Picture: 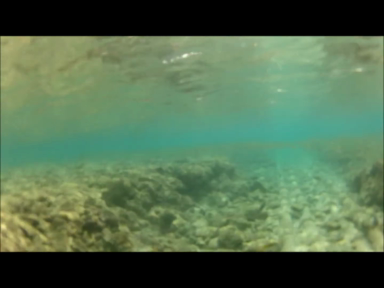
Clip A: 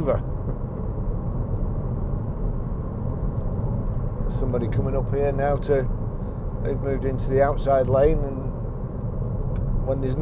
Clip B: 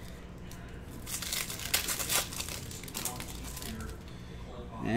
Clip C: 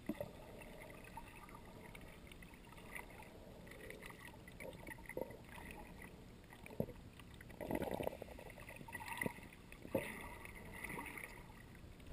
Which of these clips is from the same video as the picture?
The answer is C